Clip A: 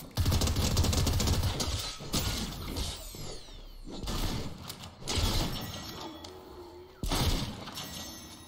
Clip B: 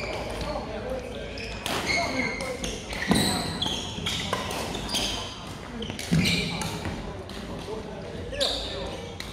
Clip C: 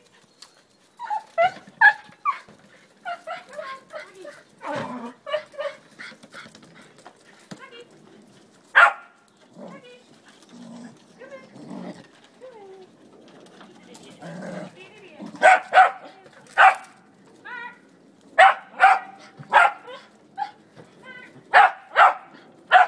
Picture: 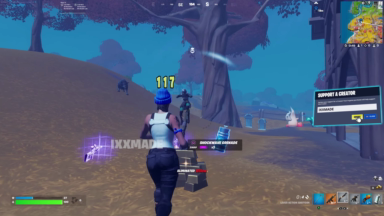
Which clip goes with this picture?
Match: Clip A